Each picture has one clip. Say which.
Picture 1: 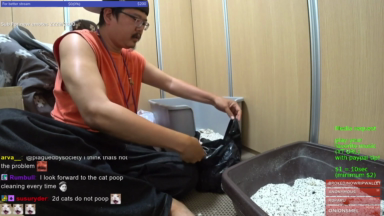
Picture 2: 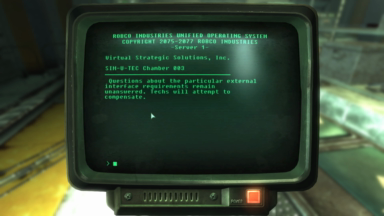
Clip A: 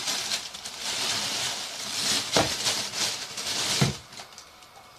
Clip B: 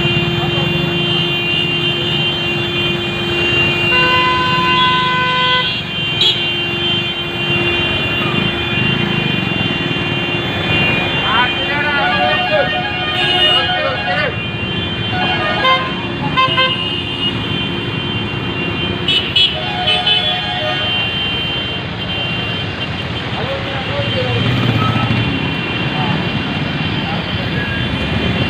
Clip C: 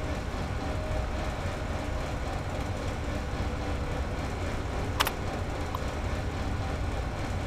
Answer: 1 A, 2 C